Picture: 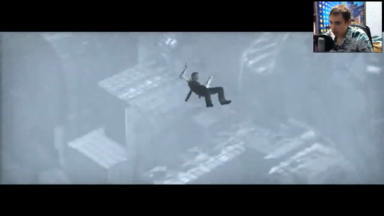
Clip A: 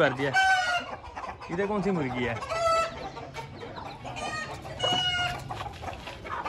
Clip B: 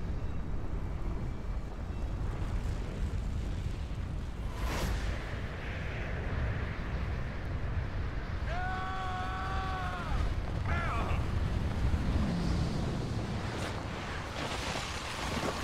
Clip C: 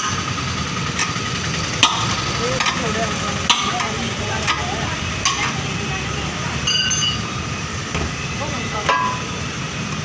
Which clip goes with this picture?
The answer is B